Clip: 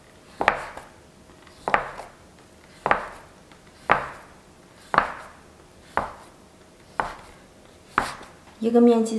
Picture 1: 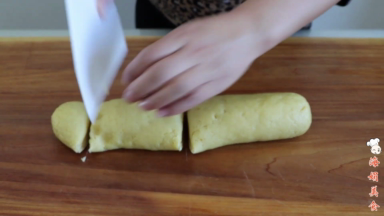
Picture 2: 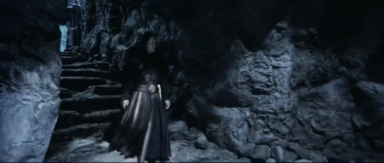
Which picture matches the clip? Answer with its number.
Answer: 1